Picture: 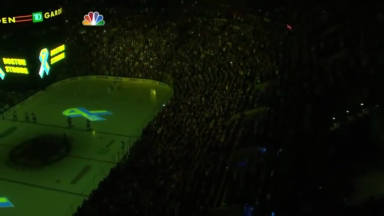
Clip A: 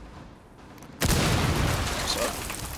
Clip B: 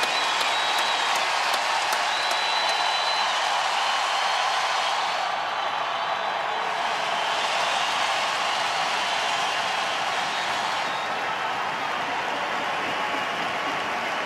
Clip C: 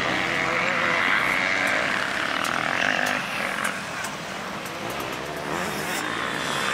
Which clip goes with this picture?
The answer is B